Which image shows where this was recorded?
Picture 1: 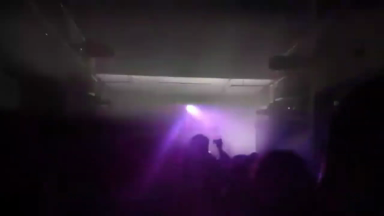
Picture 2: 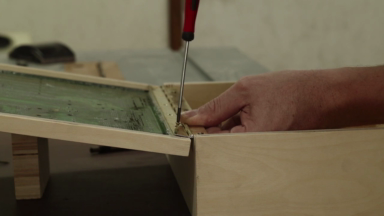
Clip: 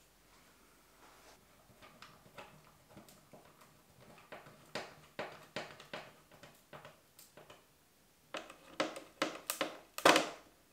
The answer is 2